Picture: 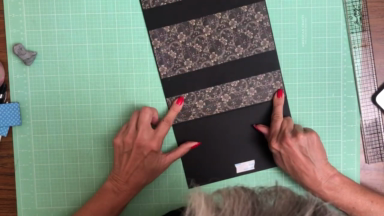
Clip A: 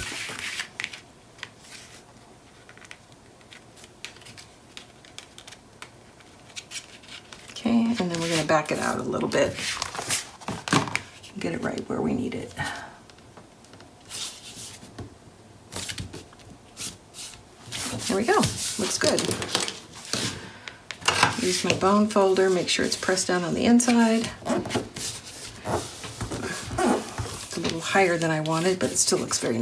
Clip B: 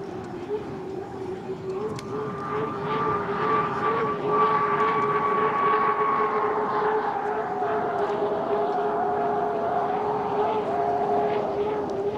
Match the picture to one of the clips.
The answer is A